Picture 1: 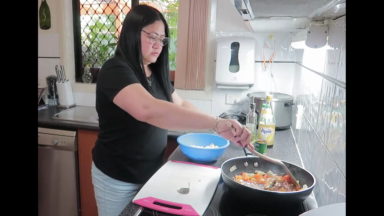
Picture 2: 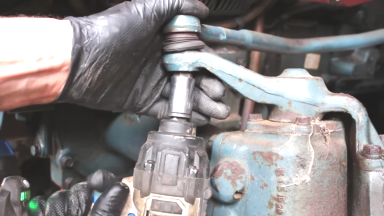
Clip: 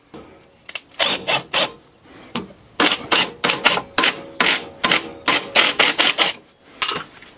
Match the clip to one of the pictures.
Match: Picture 2